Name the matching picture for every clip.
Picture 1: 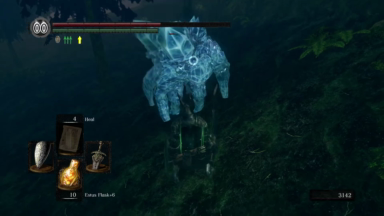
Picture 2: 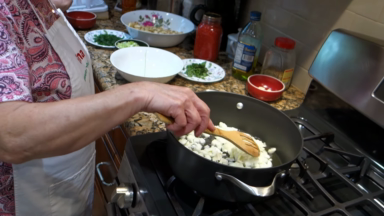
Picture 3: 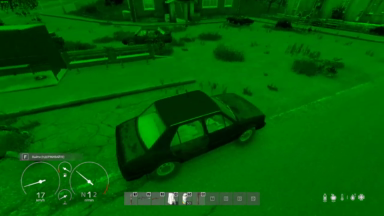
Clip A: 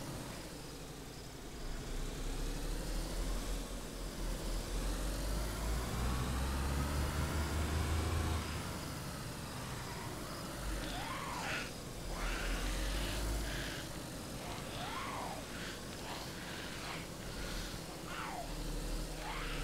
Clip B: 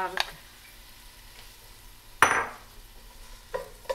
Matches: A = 3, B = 2